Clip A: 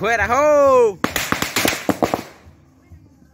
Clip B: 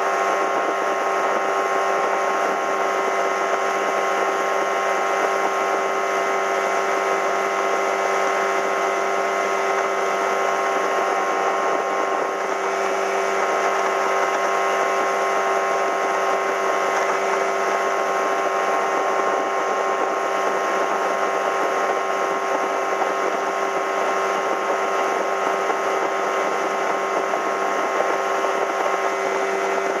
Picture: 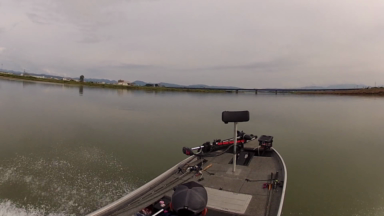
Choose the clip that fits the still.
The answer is B